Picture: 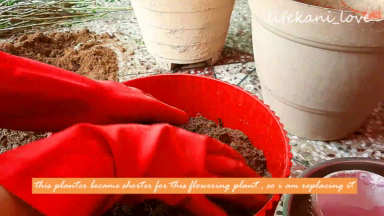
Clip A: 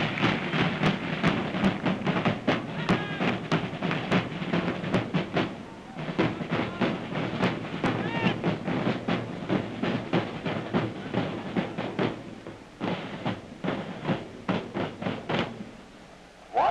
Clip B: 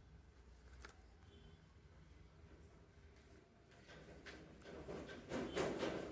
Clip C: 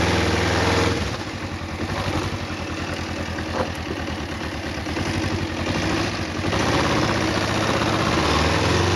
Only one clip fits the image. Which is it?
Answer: B